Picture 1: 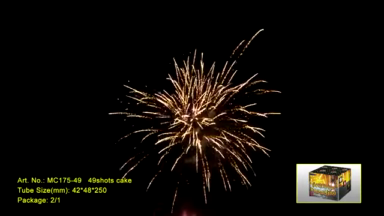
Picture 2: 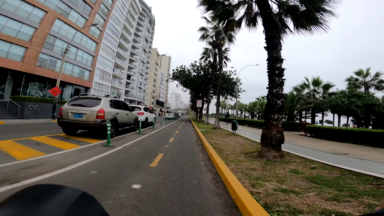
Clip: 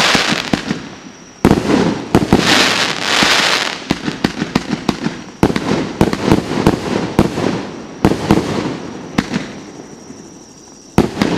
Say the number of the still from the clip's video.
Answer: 1